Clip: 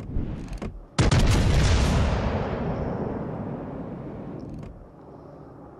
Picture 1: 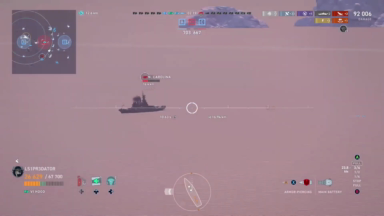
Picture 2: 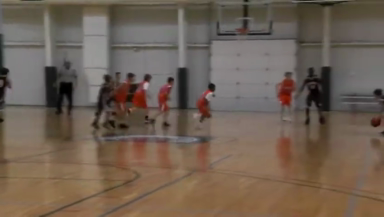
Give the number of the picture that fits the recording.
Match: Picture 1